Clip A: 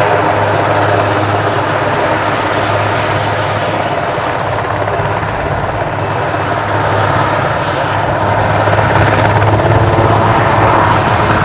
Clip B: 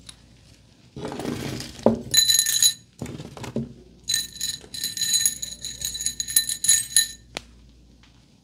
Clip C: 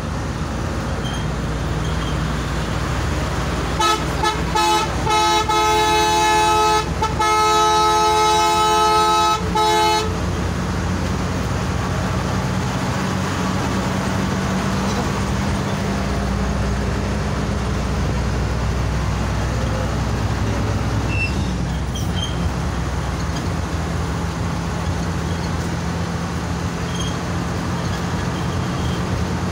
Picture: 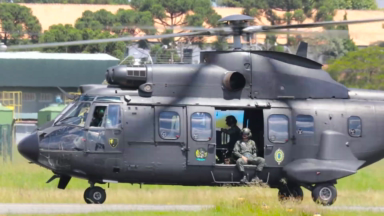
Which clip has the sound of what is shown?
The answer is A